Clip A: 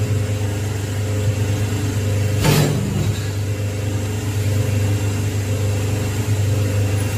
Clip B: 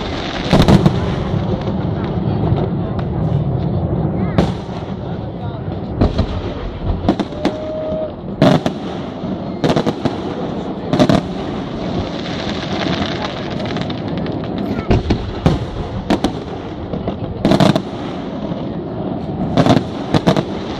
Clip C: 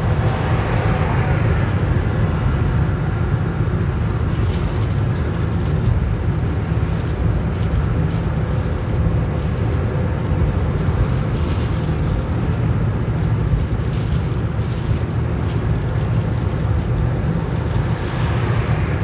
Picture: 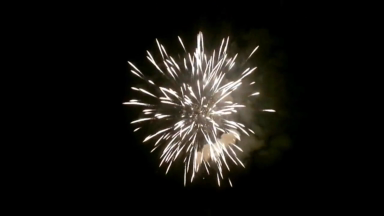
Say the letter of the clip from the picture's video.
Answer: B